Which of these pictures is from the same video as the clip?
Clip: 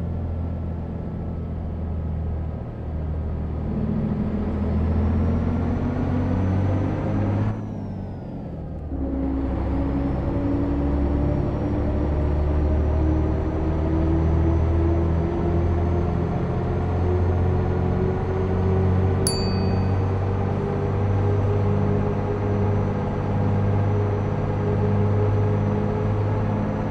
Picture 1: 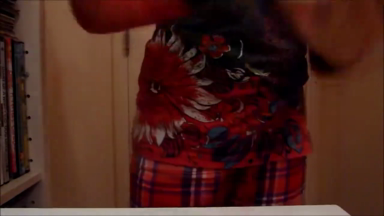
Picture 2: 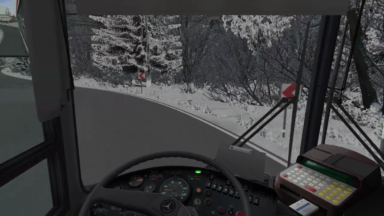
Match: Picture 2